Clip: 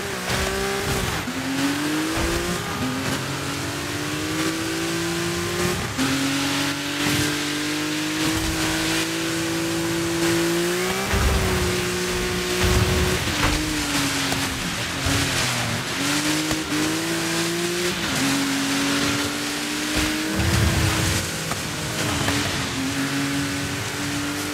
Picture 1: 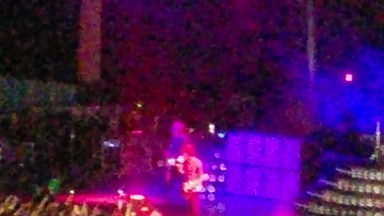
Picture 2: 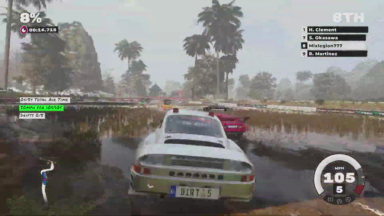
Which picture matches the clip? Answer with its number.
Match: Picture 2